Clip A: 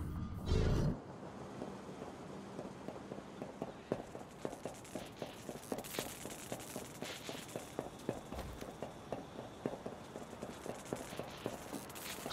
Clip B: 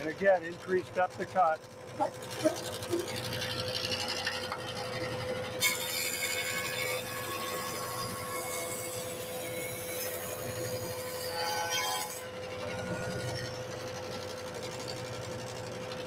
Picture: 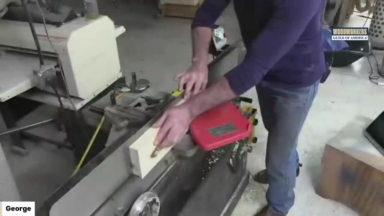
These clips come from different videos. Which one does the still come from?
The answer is B